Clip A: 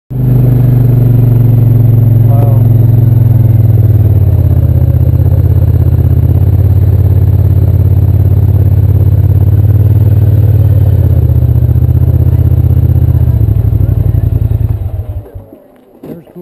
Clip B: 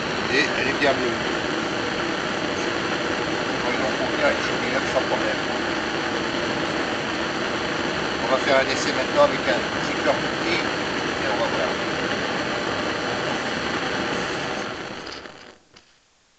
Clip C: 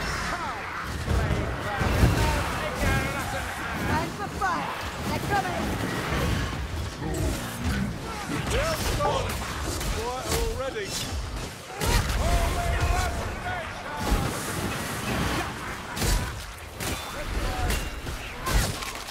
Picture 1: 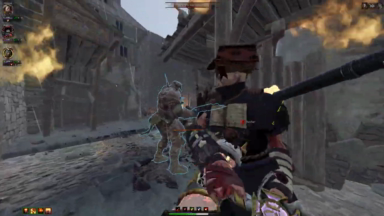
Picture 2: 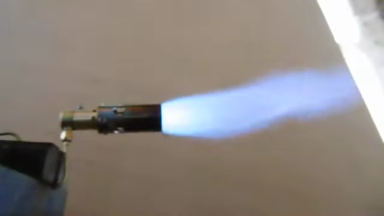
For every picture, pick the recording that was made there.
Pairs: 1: C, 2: B